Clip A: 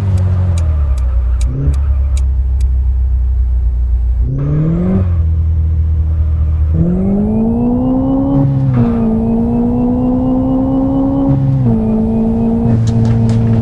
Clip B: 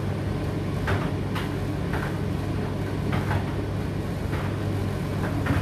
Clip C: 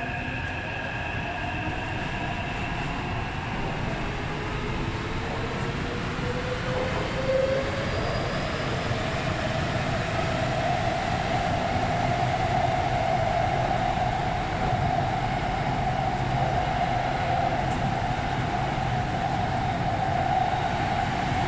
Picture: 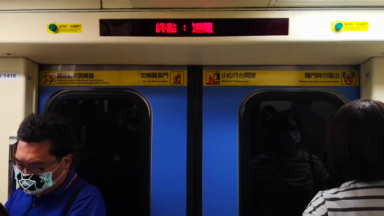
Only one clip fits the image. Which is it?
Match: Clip C